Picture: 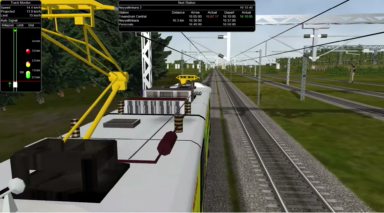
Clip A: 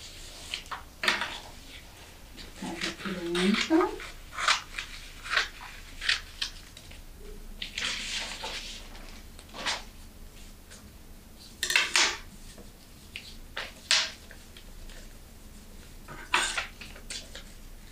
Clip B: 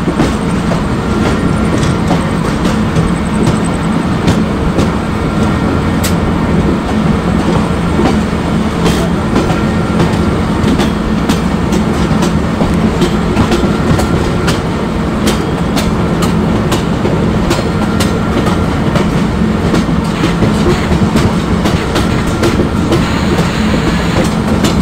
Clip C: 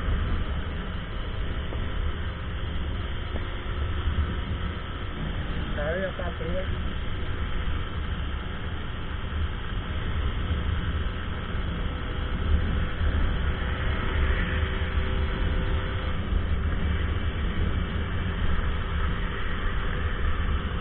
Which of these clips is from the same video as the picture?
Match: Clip B